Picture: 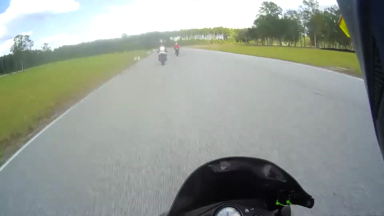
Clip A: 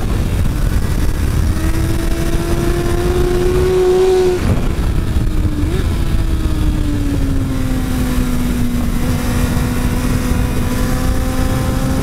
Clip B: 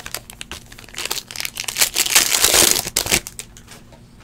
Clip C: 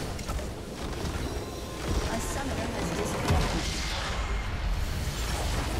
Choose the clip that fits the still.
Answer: A